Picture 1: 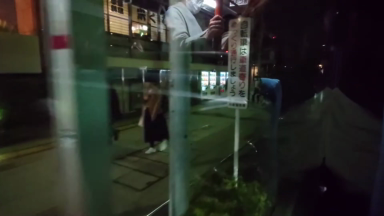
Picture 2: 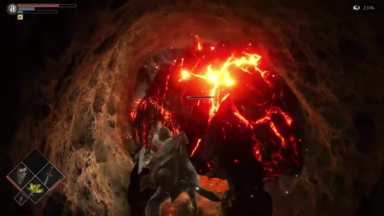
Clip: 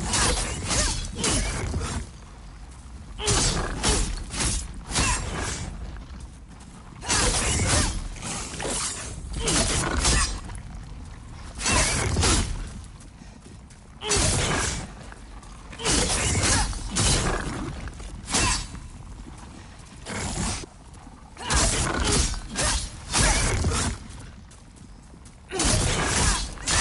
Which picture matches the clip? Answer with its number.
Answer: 2